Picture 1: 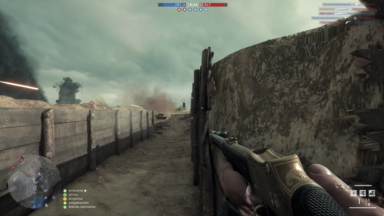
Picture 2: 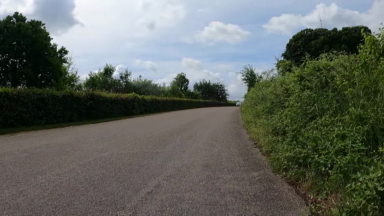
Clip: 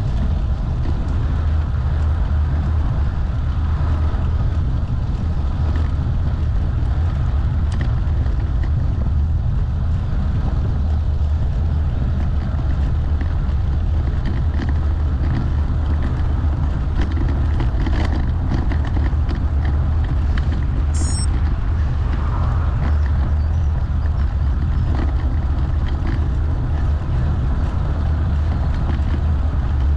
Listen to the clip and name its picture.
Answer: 2